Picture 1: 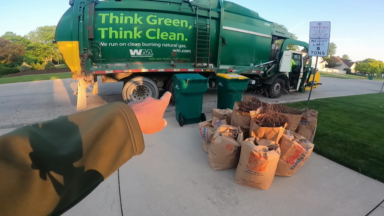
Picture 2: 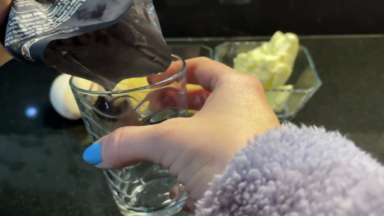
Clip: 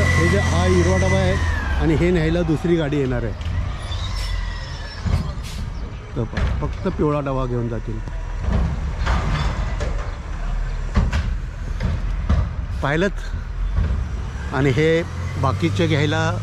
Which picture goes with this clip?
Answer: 1